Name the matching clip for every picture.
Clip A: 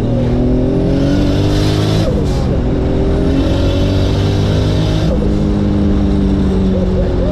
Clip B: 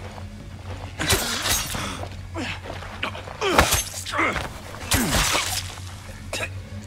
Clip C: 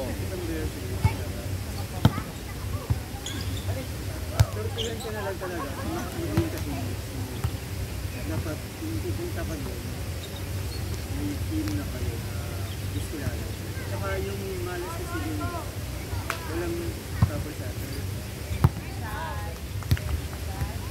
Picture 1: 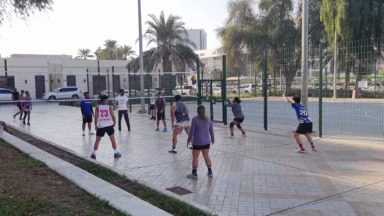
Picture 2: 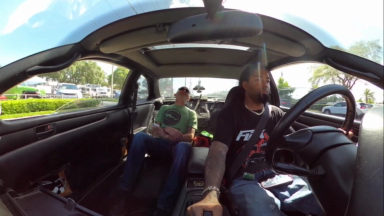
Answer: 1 C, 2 A